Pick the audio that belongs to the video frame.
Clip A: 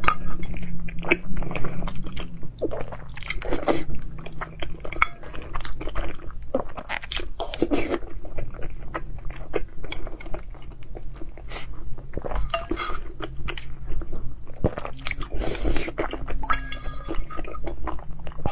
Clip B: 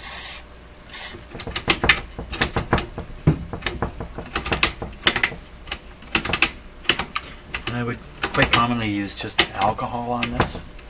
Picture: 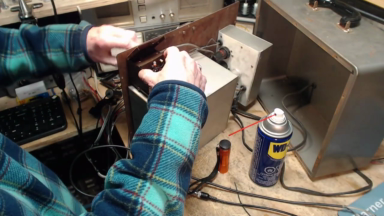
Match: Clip B